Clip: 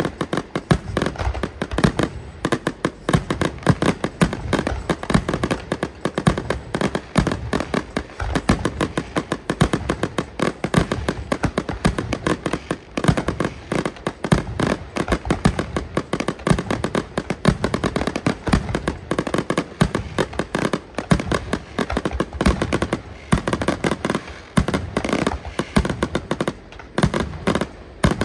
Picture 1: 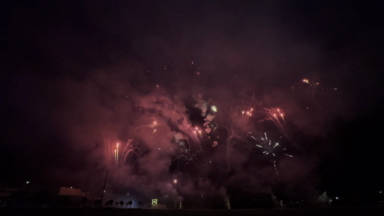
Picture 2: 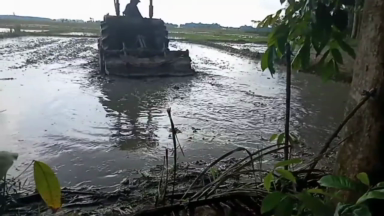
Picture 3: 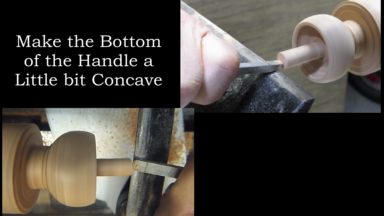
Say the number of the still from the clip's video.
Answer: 1